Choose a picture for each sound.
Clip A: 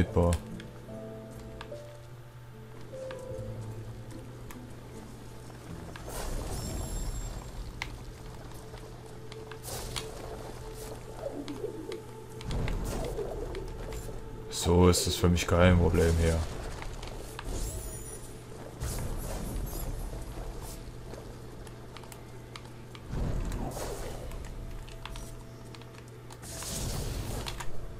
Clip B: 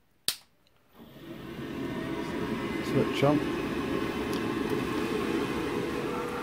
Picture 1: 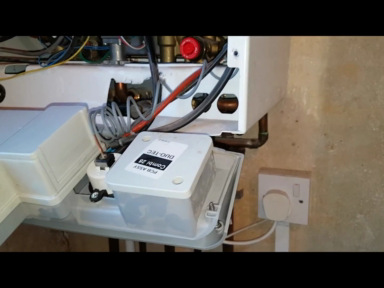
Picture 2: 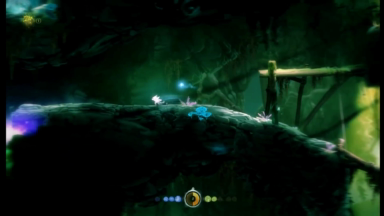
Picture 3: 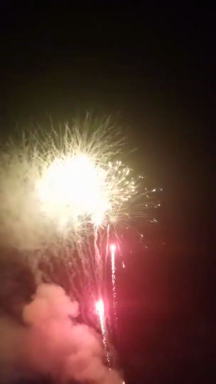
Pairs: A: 2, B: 1